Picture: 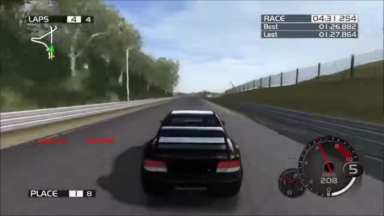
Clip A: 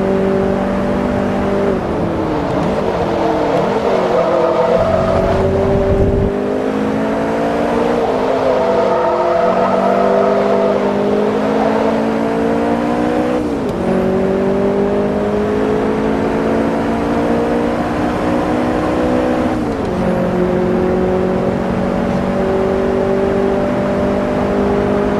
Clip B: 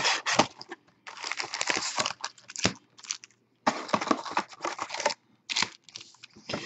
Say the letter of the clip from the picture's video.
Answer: A